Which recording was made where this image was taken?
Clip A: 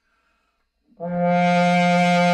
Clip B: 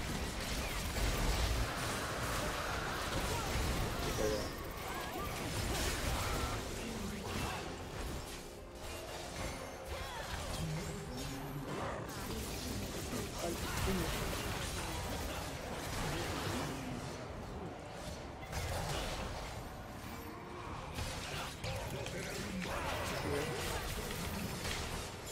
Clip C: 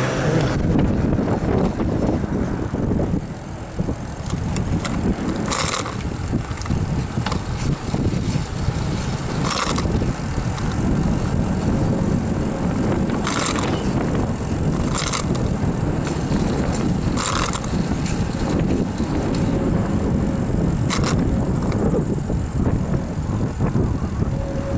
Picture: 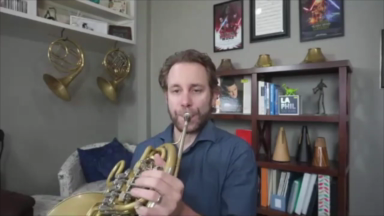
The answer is A